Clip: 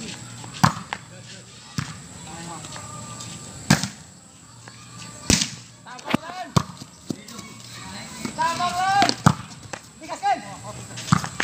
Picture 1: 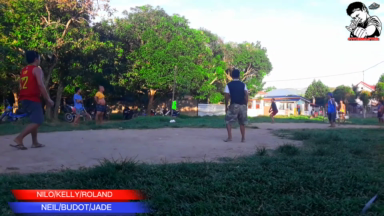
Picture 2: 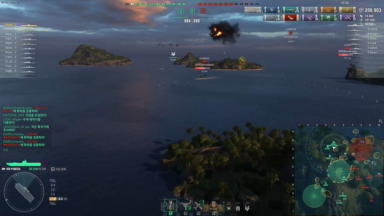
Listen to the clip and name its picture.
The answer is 1